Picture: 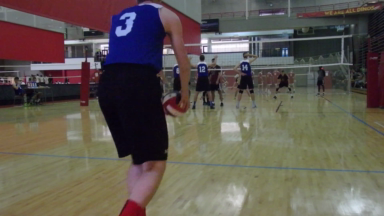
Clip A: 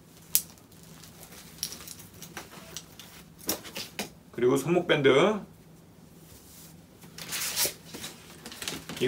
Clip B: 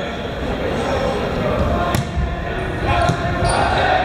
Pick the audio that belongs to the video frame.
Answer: B